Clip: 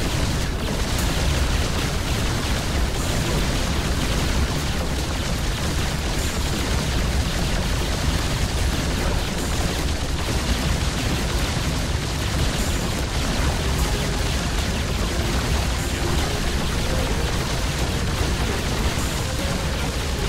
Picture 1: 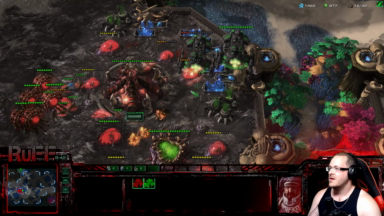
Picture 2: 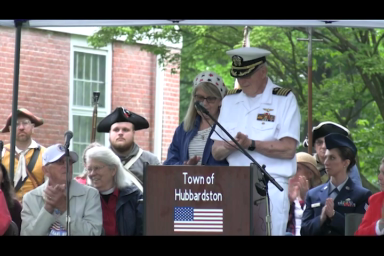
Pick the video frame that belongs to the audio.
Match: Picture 1